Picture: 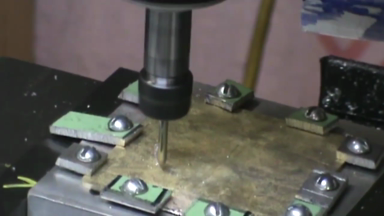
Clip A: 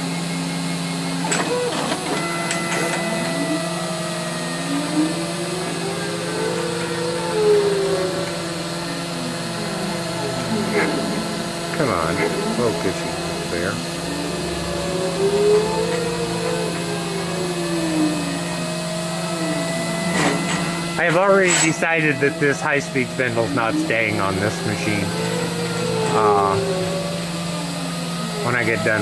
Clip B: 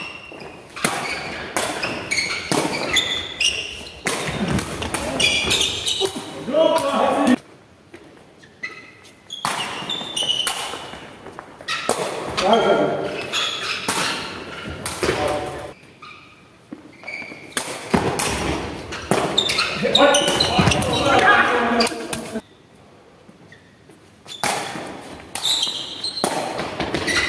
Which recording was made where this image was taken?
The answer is A